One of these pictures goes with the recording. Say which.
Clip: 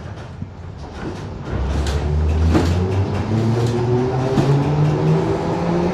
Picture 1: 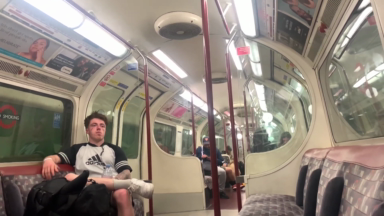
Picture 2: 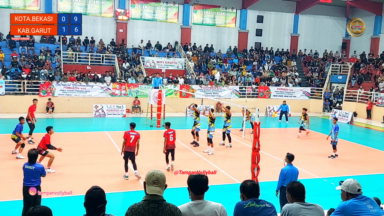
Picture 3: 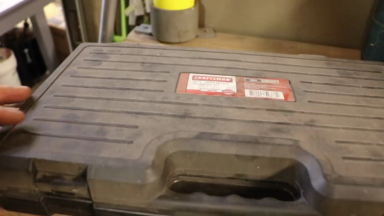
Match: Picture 1